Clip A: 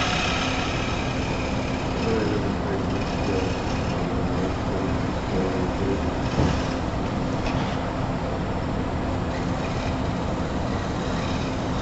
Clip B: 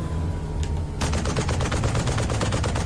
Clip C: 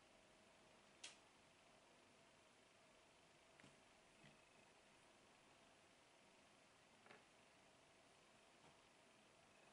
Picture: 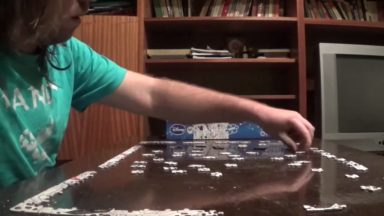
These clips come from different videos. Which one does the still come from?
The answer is C